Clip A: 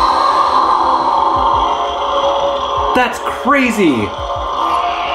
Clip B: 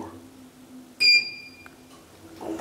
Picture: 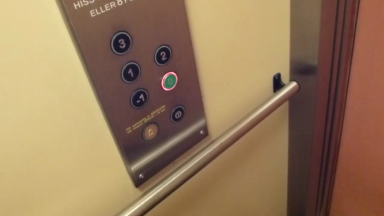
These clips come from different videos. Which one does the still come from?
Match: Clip B